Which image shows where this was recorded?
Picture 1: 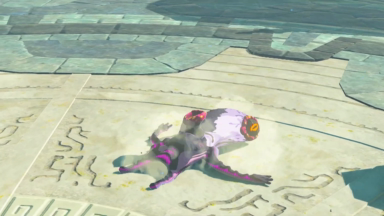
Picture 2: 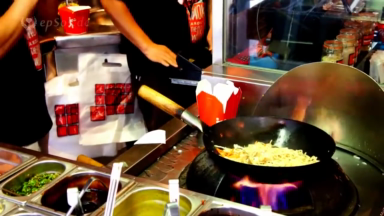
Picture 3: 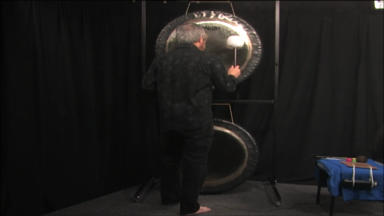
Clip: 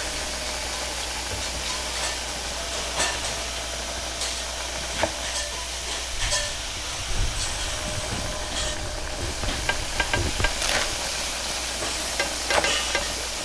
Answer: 2